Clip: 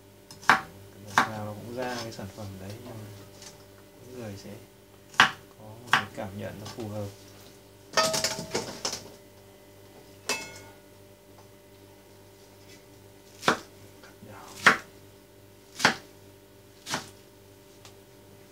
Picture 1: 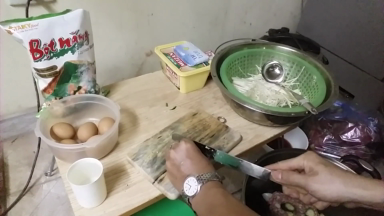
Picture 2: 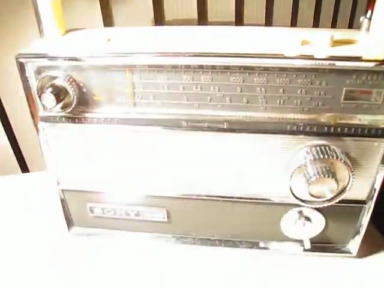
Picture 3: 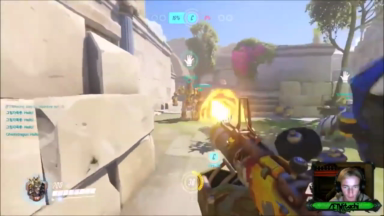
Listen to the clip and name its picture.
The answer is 1